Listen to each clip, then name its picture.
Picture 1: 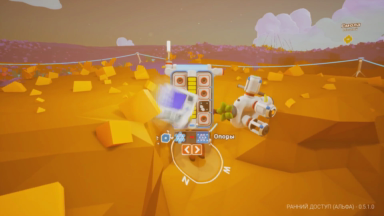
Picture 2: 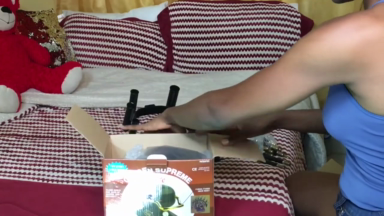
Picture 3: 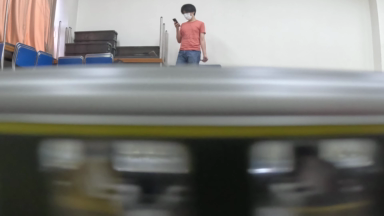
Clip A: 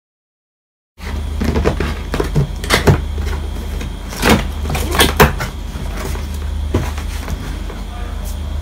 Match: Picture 2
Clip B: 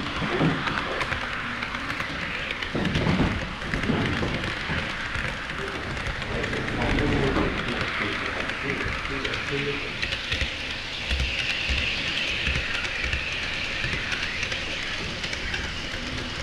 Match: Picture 3